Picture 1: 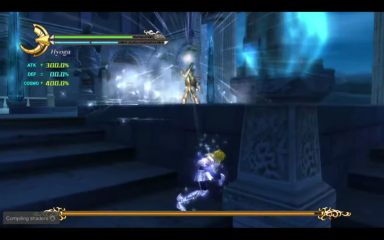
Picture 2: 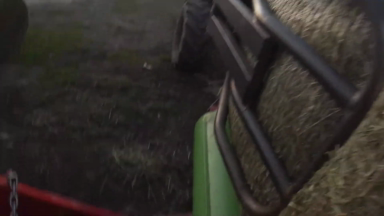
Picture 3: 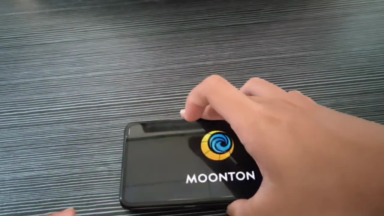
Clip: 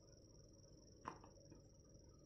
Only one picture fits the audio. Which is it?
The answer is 3